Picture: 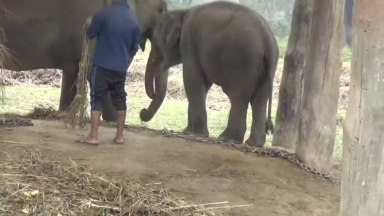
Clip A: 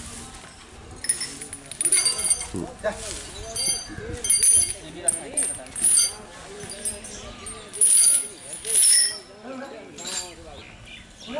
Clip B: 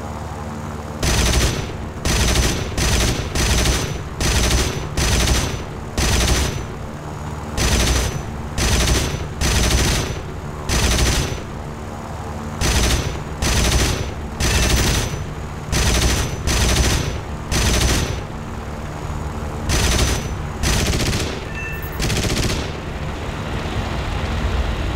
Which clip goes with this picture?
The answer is A